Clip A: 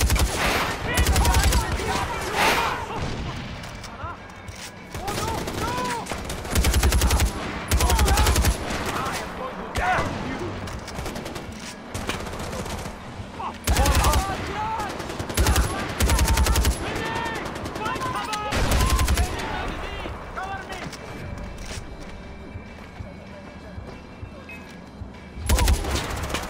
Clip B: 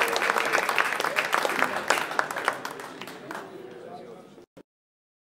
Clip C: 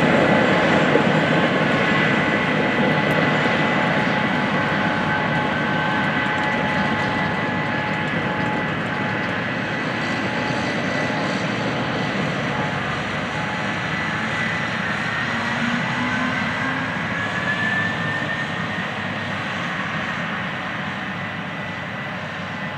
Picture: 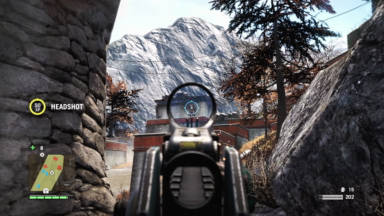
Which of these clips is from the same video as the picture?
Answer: A